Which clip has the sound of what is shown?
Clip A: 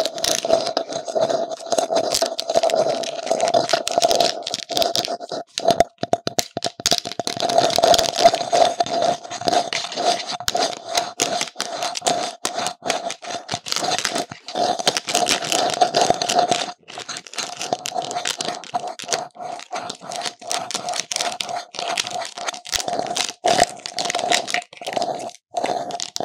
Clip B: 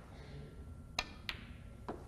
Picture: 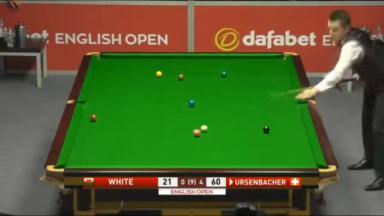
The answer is B